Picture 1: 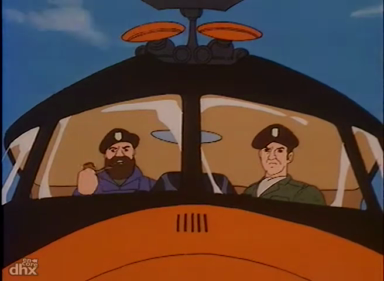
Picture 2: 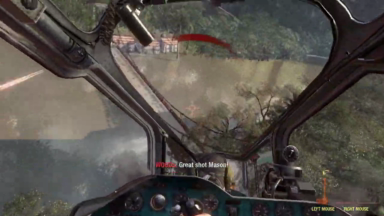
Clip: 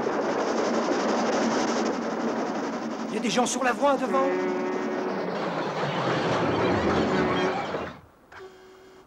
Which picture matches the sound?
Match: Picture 1